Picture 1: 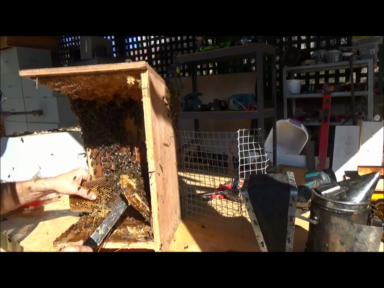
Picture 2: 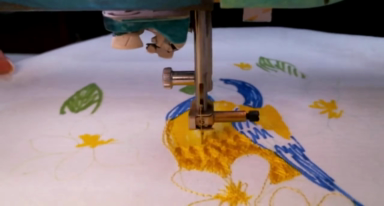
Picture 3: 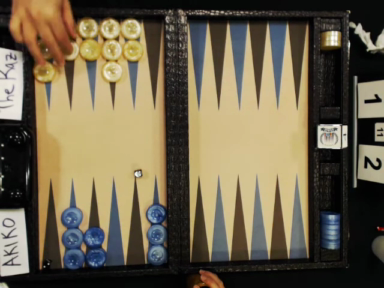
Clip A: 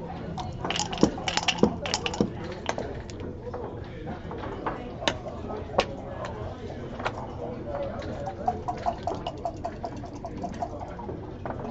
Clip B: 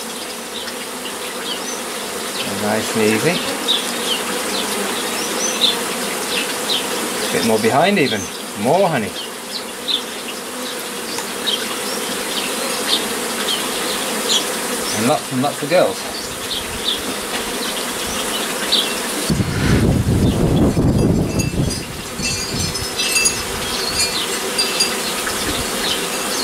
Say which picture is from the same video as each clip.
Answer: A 3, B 1